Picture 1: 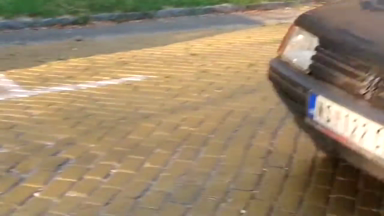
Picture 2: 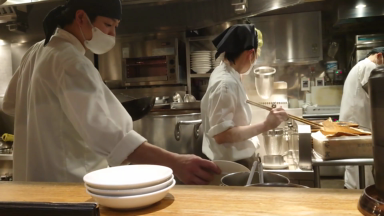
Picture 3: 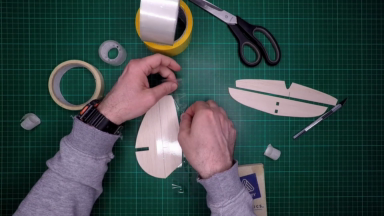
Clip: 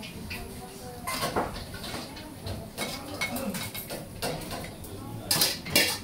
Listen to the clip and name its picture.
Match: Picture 2